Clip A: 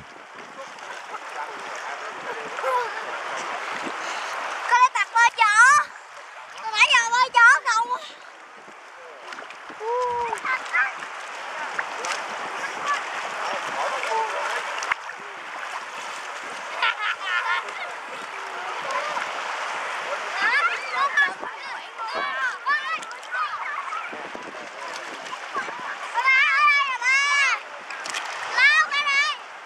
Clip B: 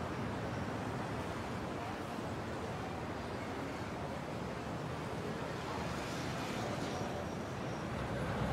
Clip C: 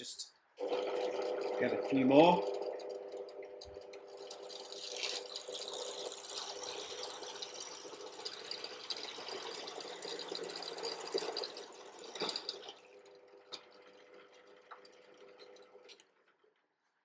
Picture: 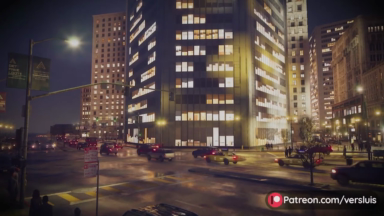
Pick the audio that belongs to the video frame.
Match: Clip B